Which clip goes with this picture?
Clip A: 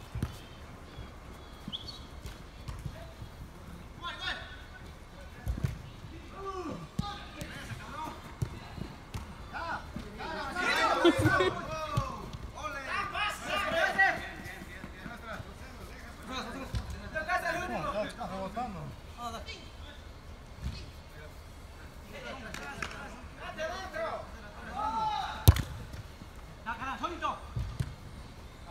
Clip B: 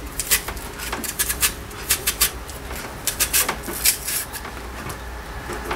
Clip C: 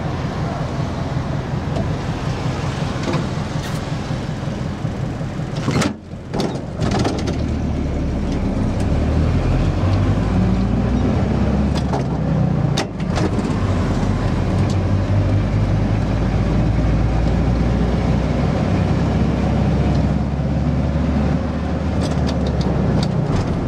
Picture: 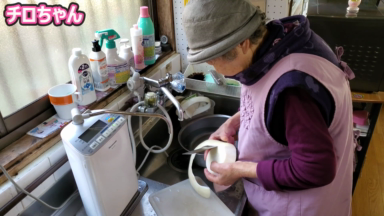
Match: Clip B